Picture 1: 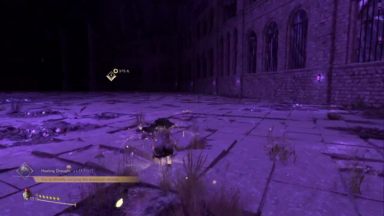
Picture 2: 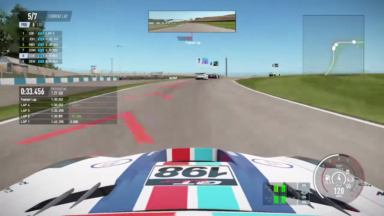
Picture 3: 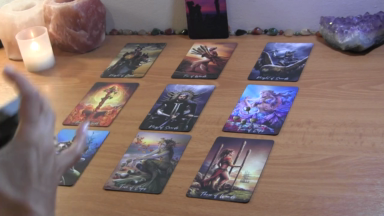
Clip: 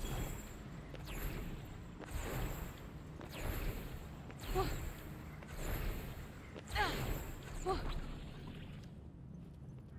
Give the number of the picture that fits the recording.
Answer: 1